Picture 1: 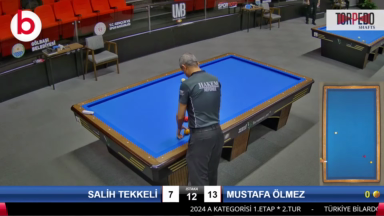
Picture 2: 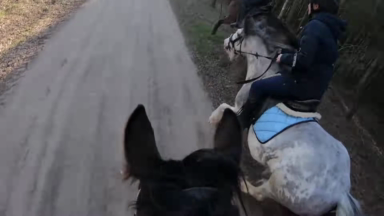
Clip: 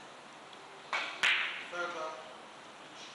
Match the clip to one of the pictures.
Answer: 1